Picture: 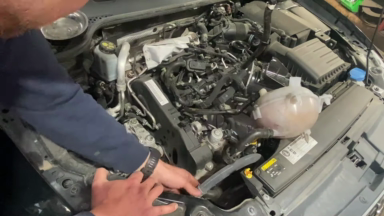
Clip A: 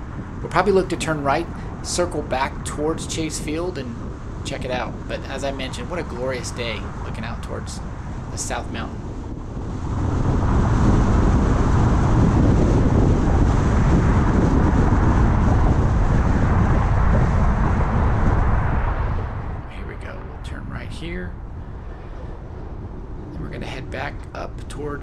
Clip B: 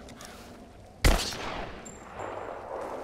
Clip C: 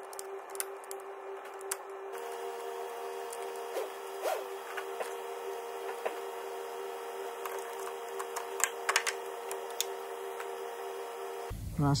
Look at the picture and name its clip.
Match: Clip C